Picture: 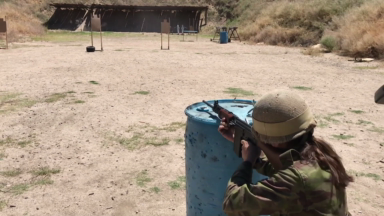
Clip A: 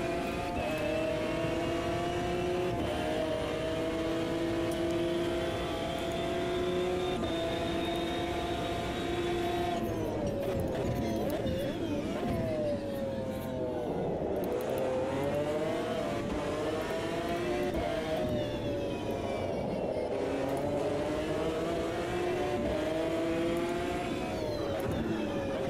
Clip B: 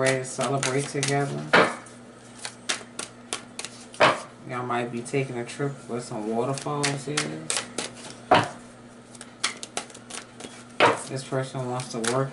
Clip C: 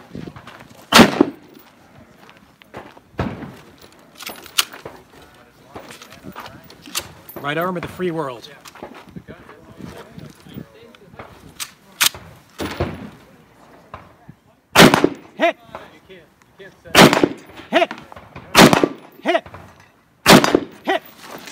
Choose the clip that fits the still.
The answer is C